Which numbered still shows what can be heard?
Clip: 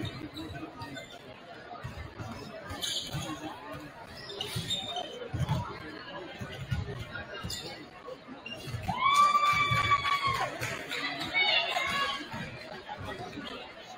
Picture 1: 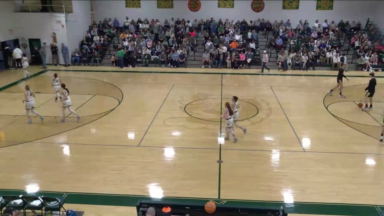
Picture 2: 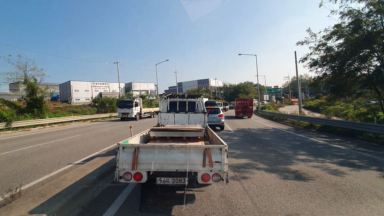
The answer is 1